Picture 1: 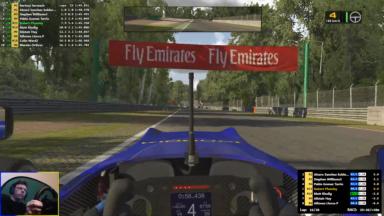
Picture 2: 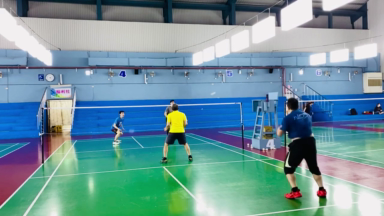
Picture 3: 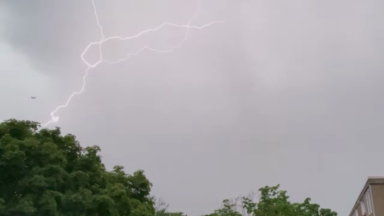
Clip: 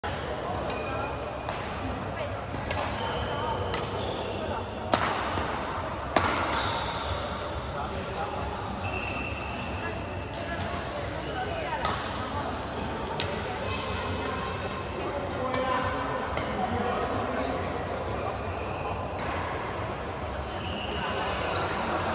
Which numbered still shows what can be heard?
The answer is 2